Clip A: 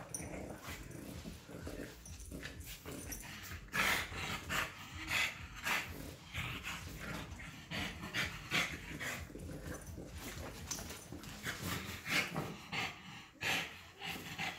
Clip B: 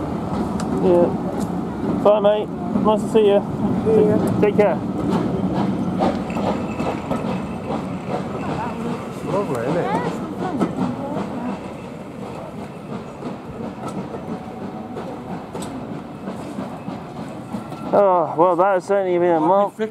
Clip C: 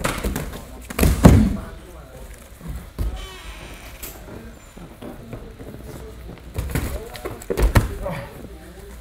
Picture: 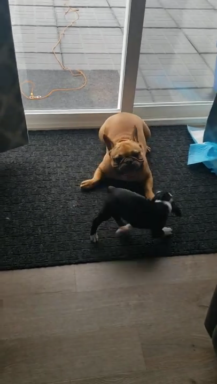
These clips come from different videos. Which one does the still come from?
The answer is A